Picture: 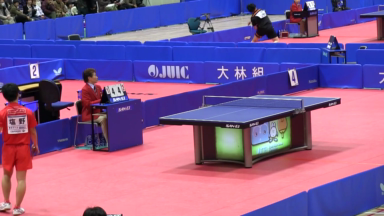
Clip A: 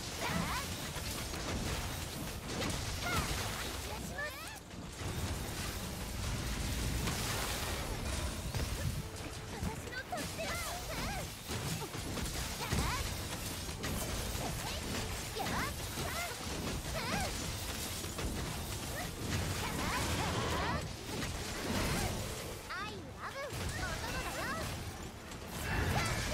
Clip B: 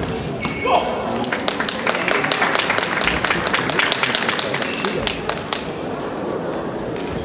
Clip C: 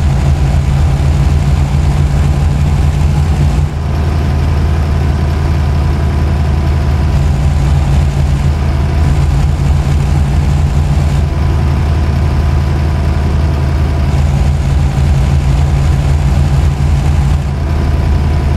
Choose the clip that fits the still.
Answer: B